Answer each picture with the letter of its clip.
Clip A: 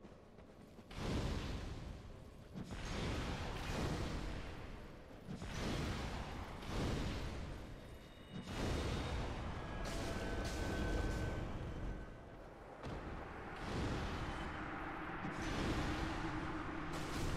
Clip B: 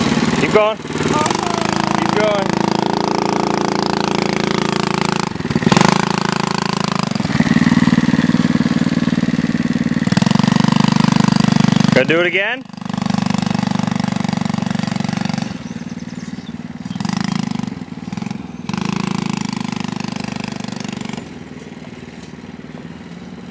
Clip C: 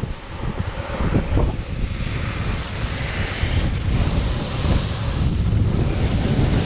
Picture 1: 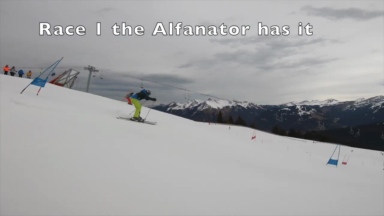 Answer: C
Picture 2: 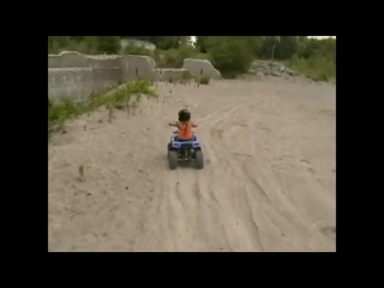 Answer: B